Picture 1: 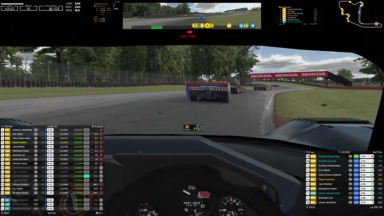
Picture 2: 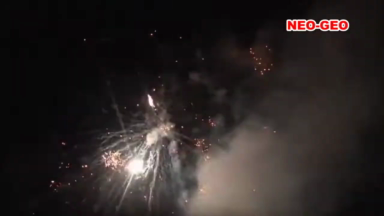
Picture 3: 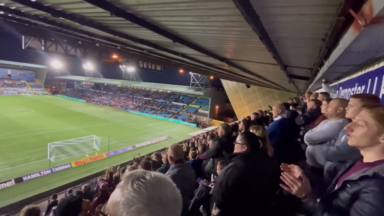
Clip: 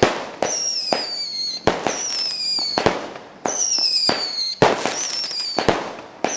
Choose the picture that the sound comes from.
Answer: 2